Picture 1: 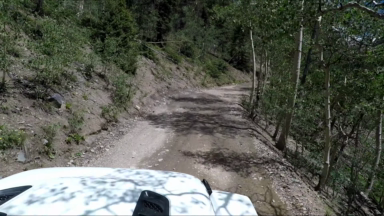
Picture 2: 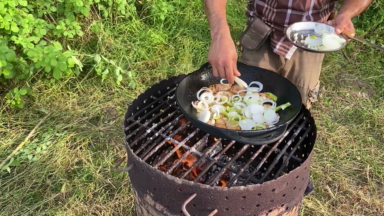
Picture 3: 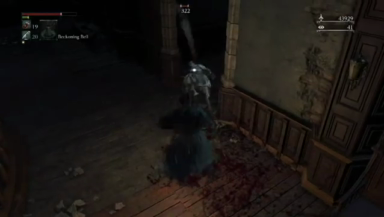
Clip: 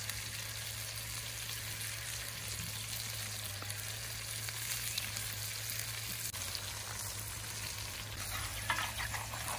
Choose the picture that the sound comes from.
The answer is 2